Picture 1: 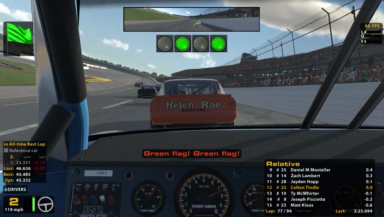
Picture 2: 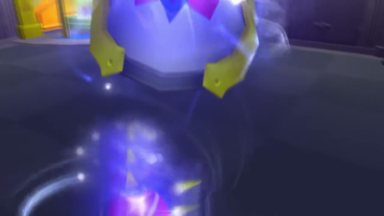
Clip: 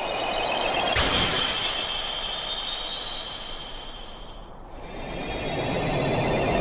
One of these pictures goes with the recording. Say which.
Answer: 2